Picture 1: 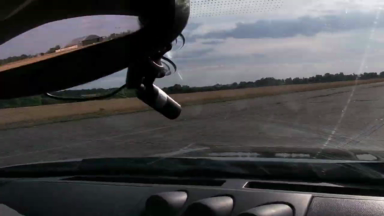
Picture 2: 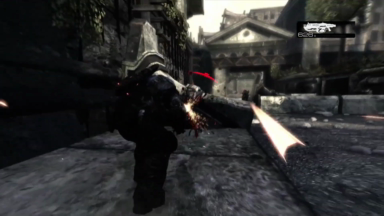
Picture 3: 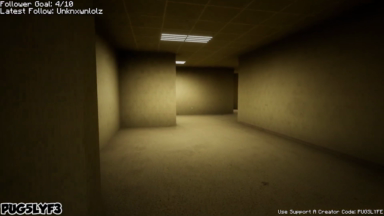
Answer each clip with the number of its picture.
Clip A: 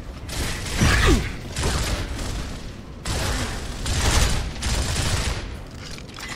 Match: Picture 2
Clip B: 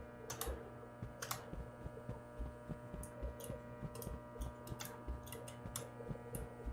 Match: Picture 3